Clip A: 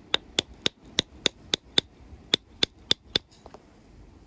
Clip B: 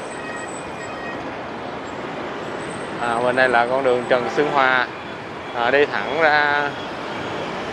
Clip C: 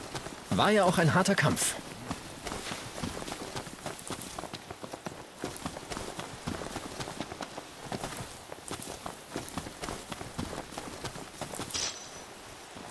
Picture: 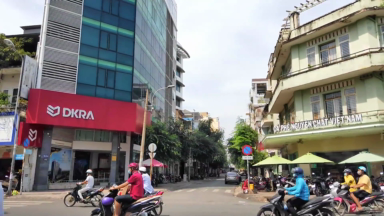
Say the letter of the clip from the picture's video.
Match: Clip B